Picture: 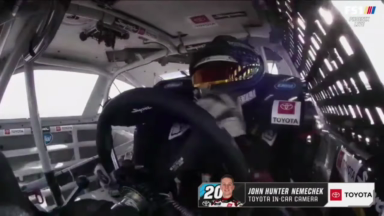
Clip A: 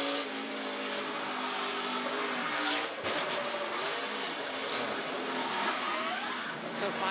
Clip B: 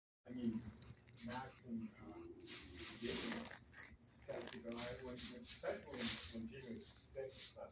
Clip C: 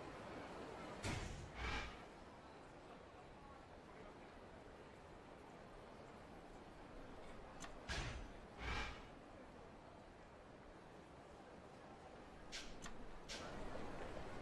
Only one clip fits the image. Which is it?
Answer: A